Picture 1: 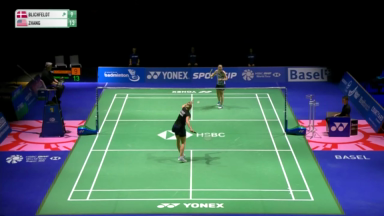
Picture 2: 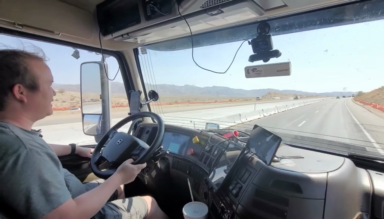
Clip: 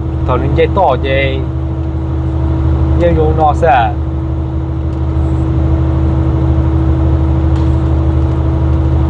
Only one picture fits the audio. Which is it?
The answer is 2